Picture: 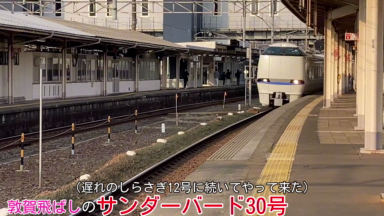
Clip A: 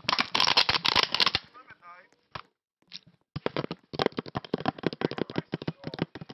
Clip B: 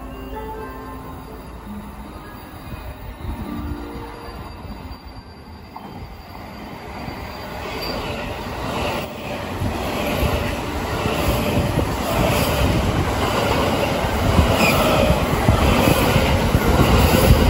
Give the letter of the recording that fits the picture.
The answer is B